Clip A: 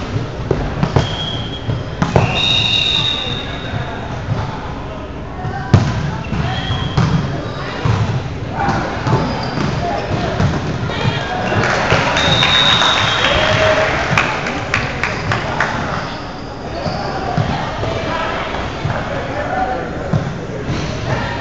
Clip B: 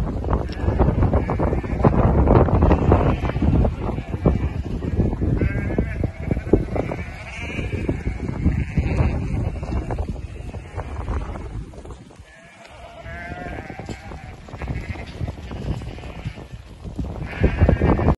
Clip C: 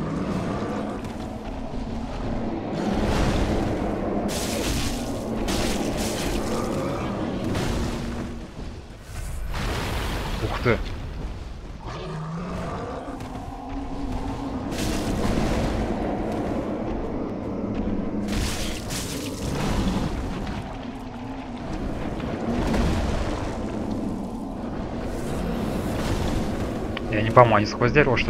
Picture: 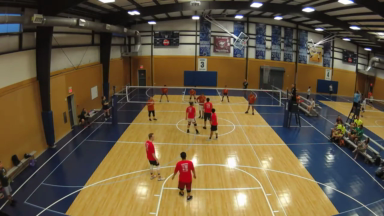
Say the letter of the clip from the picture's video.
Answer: A